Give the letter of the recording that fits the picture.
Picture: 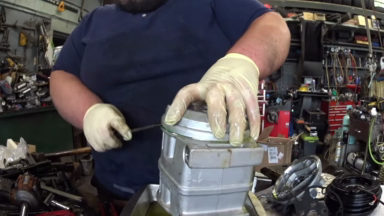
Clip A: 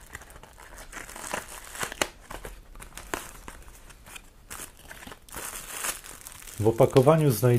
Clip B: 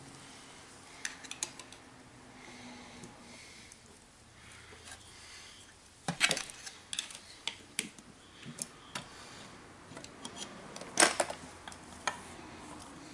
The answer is B